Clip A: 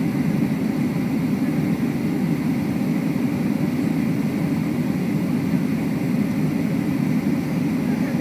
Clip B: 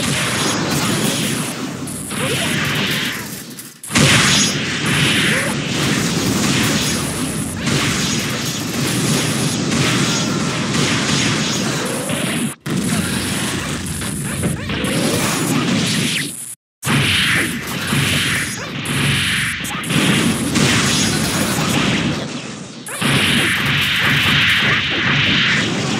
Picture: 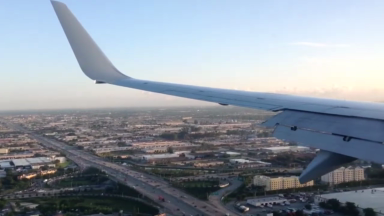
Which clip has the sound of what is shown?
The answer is A